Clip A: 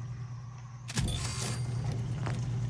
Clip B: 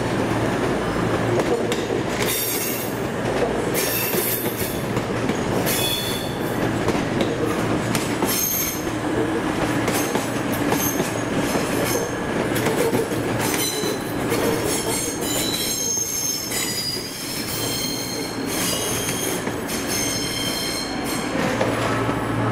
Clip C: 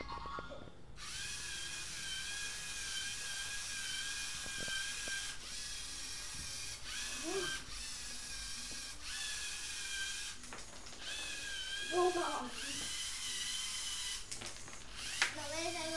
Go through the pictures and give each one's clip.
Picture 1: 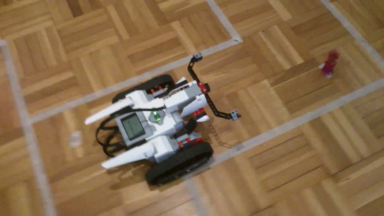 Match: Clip C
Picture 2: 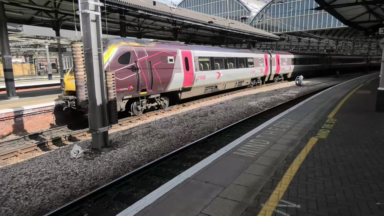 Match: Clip B